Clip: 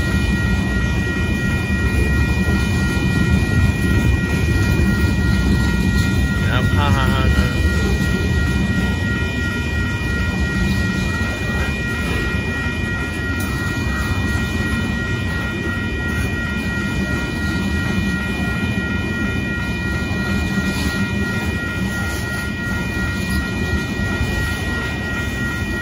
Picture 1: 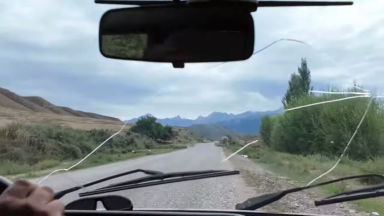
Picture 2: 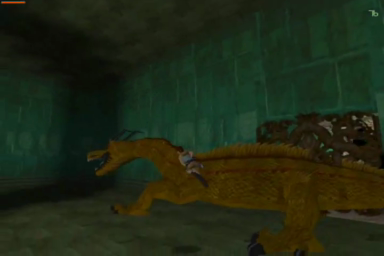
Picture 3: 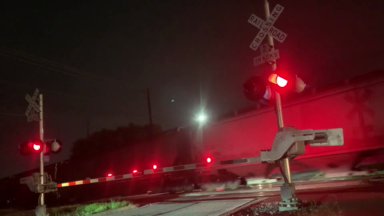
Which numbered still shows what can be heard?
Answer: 3